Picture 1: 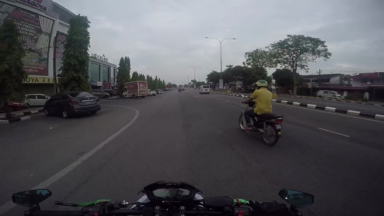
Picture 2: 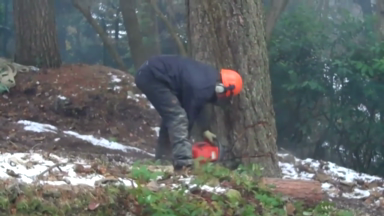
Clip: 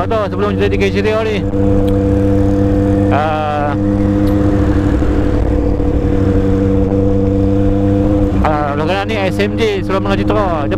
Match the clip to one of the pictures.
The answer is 1